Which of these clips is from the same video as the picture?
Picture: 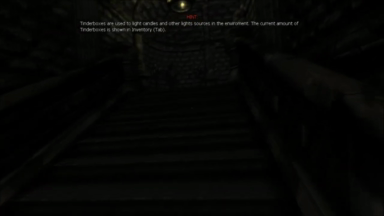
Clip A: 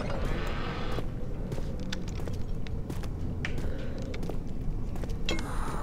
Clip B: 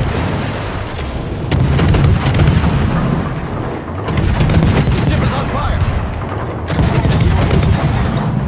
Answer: A